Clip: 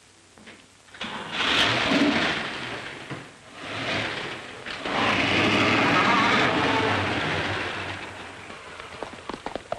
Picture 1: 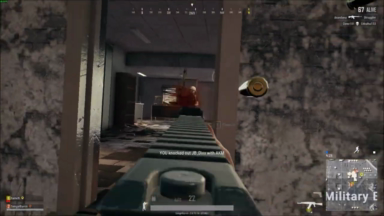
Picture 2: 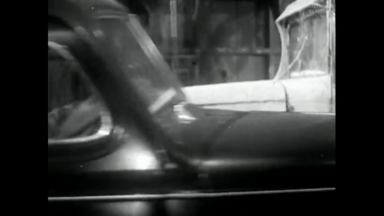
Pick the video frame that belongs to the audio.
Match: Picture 2